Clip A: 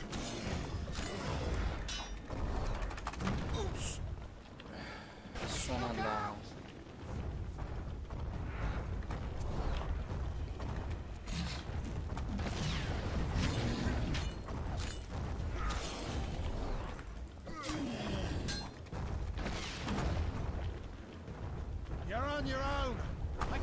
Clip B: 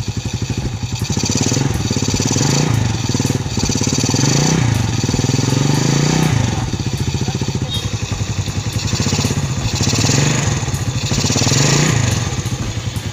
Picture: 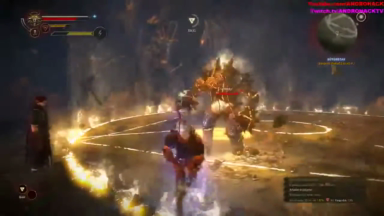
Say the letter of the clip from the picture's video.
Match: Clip A